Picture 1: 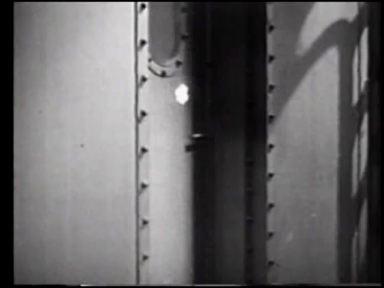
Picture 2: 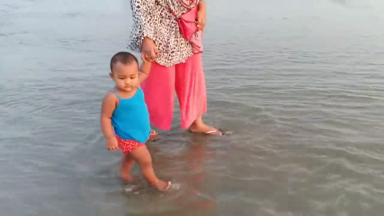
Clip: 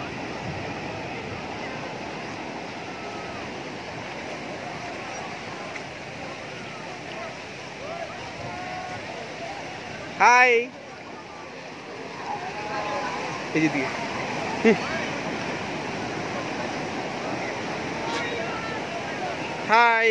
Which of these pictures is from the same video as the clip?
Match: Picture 2